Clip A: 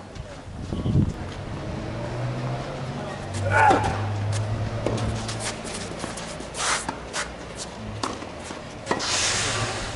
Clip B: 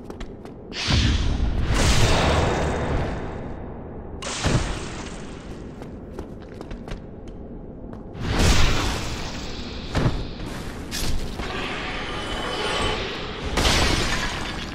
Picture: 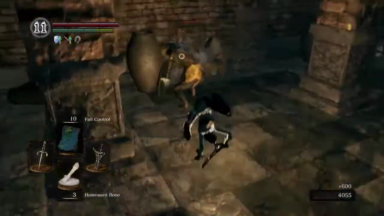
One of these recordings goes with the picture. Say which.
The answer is B